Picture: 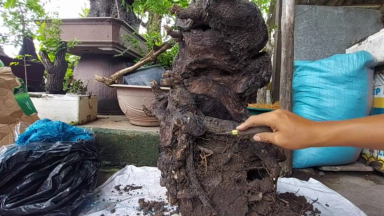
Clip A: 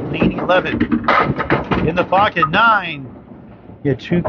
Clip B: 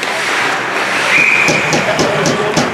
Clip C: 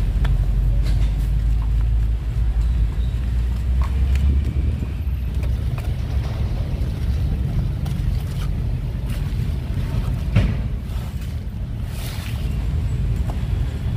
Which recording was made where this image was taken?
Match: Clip C